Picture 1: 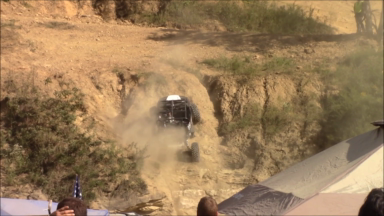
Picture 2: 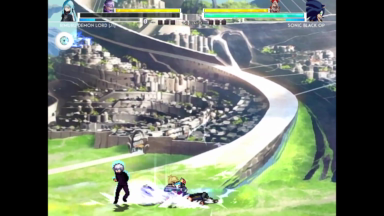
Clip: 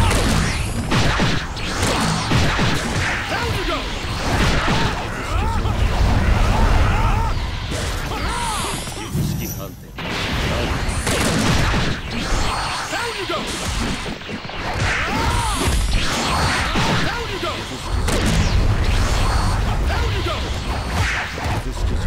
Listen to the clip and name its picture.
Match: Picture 2